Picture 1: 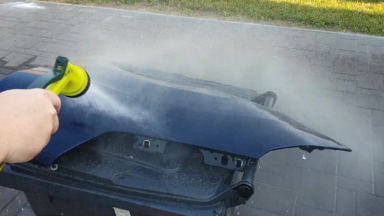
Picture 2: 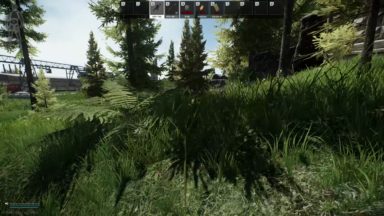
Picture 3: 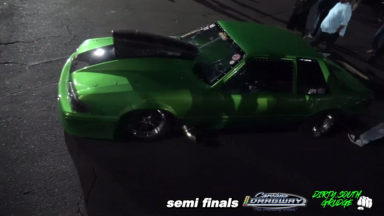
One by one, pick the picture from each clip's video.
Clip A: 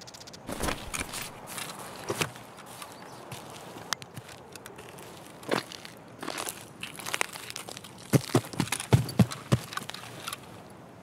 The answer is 2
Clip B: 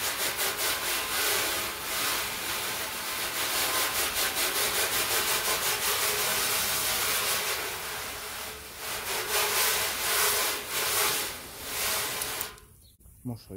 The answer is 1